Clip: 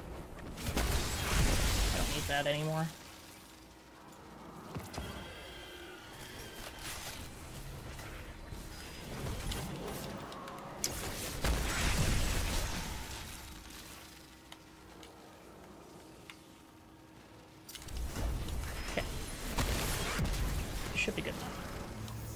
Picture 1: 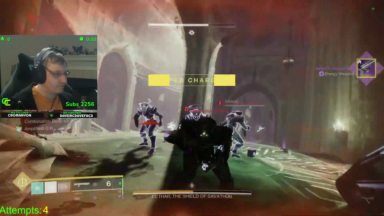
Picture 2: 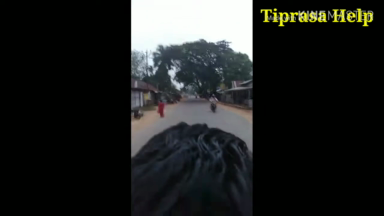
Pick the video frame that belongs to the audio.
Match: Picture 1